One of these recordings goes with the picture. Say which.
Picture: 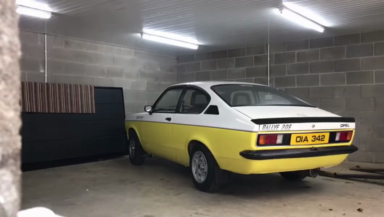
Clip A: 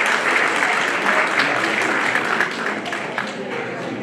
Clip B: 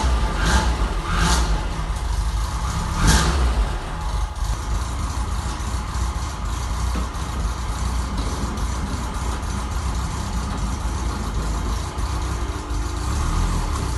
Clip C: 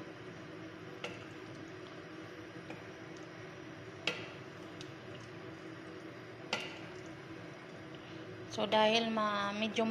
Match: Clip B